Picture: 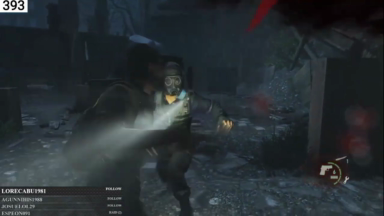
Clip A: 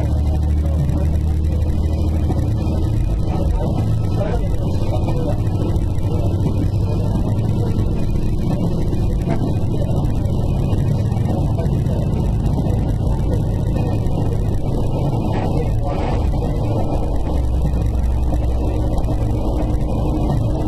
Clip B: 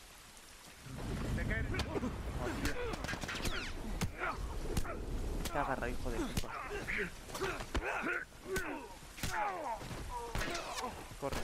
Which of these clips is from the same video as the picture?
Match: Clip B